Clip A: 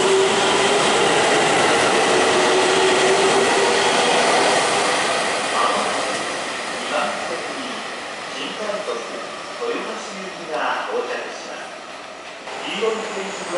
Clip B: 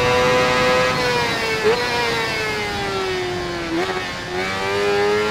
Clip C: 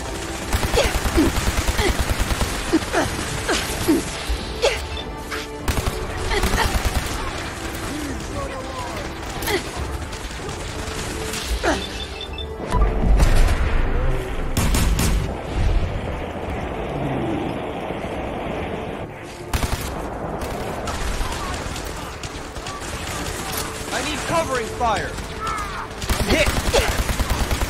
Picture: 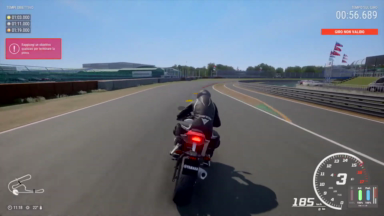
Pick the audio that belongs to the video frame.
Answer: B